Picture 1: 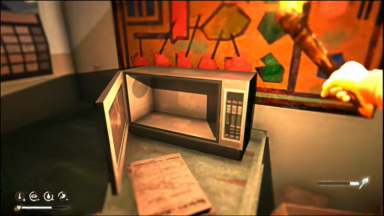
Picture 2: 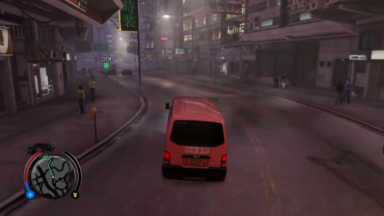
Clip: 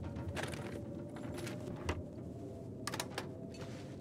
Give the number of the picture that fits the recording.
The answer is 1